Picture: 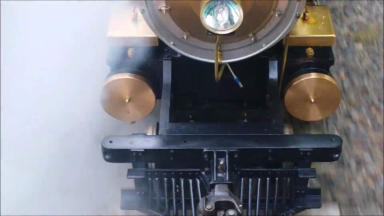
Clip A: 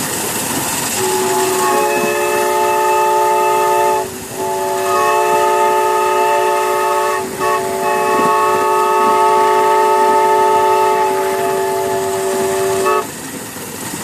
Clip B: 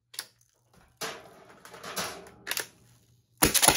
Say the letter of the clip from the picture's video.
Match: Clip A